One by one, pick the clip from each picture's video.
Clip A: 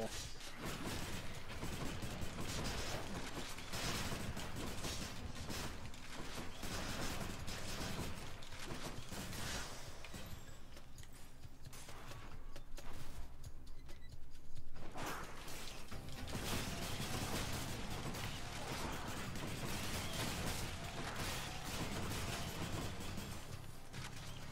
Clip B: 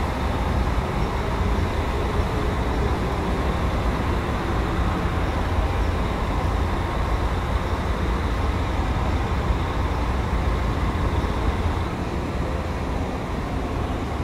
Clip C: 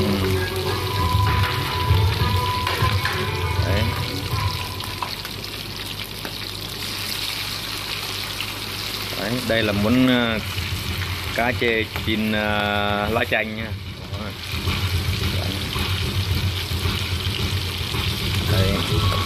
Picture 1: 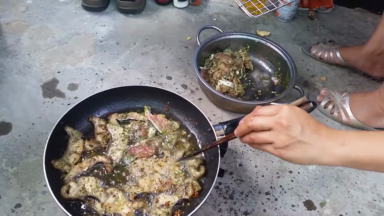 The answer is C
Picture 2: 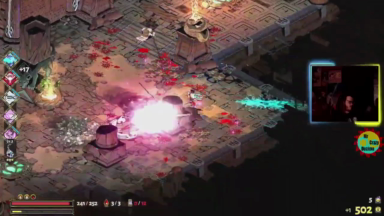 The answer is A